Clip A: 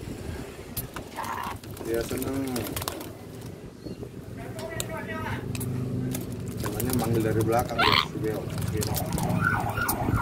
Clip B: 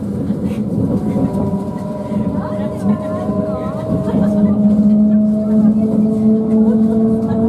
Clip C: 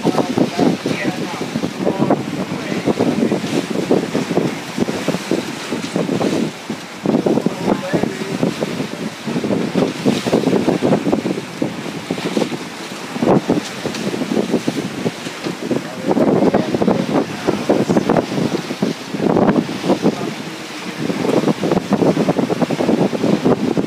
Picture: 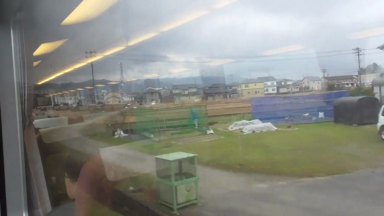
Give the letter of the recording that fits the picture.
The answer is B